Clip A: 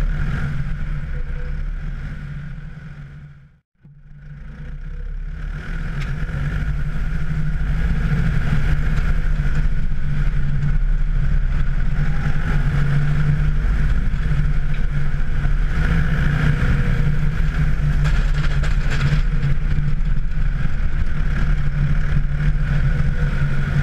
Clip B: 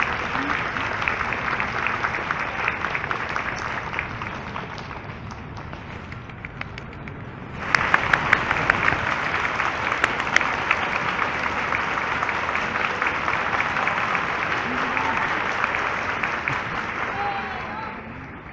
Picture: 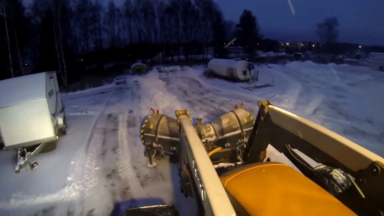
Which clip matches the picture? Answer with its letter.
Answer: A